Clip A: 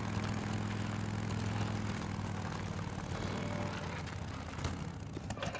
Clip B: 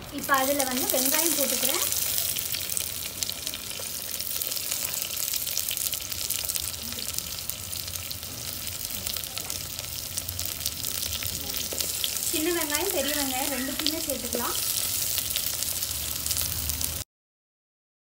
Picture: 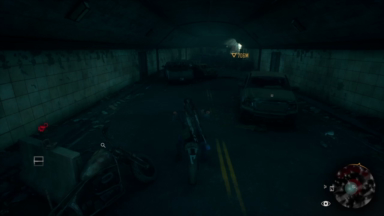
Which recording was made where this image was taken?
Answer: A